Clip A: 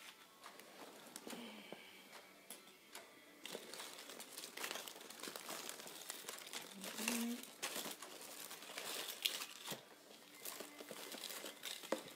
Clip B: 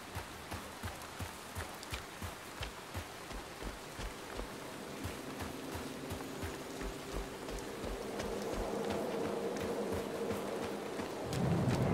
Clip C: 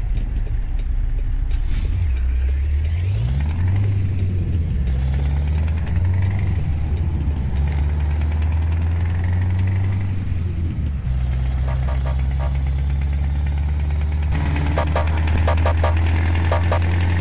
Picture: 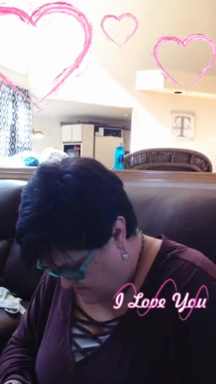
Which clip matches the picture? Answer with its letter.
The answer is A